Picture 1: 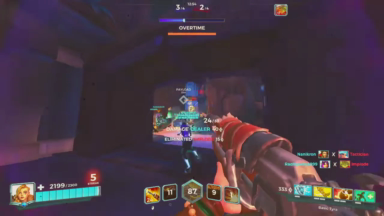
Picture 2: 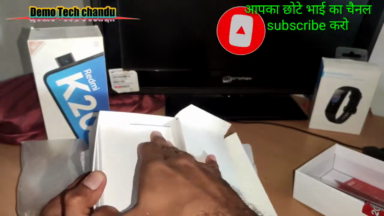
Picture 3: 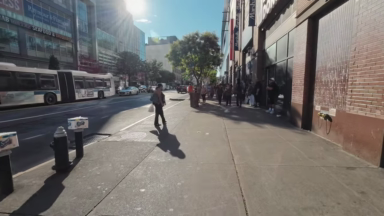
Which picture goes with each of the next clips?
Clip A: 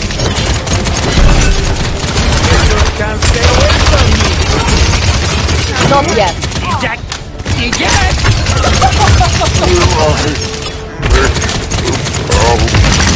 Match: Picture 1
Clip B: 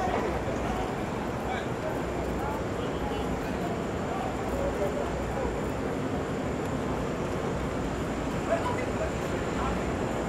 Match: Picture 3